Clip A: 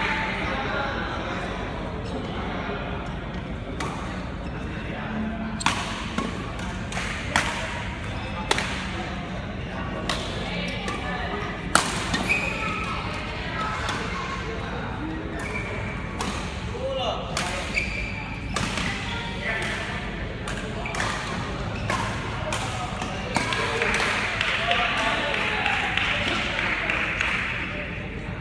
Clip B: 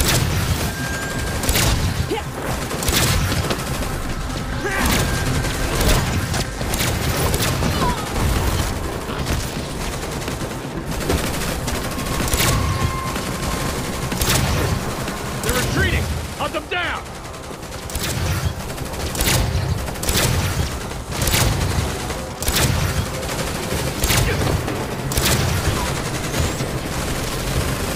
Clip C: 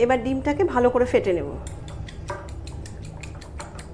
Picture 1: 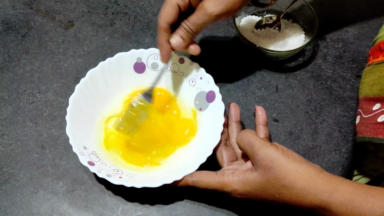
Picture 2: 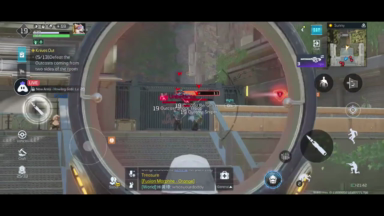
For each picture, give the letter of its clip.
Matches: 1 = C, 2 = B